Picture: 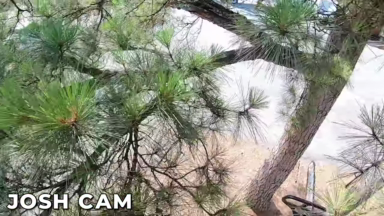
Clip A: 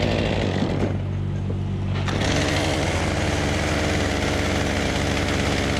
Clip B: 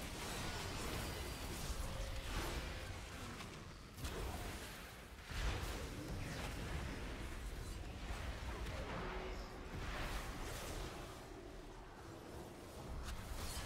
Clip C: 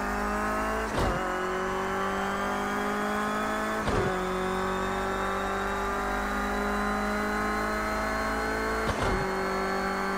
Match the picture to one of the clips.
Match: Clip A